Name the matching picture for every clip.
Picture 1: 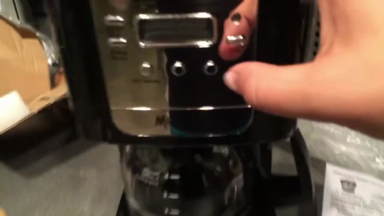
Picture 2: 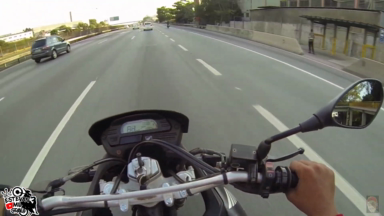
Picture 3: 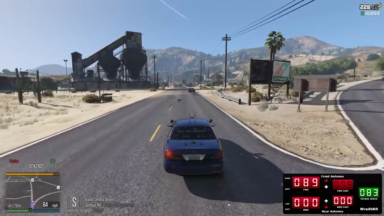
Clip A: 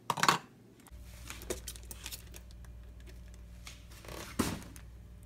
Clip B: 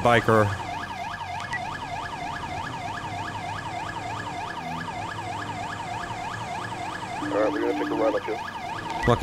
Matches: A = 1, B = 3